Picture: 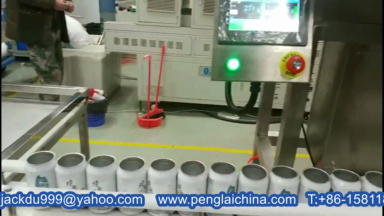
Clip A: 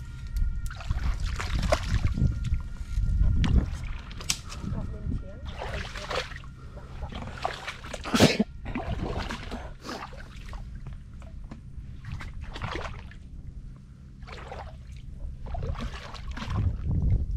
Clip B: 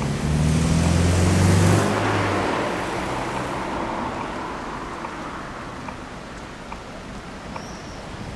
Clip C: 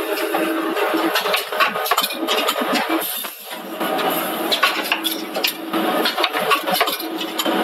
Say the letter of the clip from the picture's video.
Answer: C